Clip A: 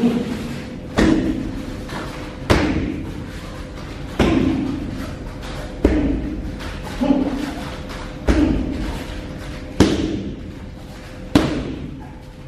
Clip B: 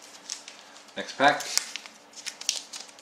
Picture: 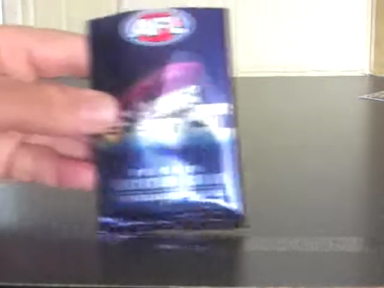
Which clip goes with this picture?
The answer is B